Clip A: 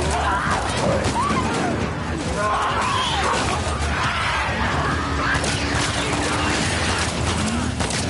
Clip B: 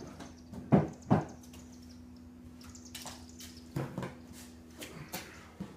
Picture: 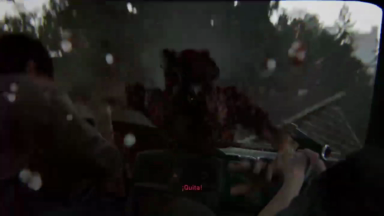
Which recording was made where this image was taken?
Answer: A